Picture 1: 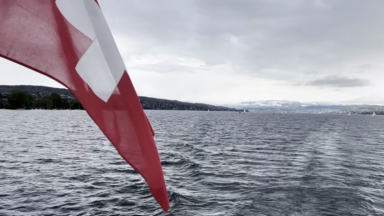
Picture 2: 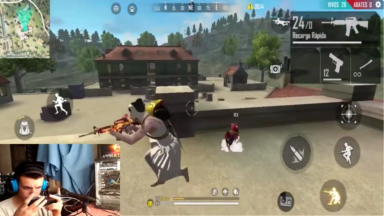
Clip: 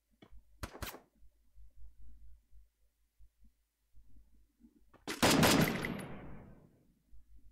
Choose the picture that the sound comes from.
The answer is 2